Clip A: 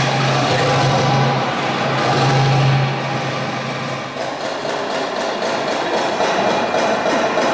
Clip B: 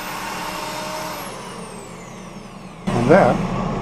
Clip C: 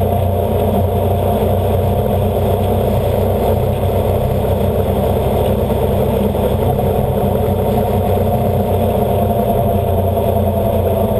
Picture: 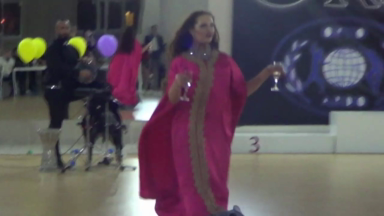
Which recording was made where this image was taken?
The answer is A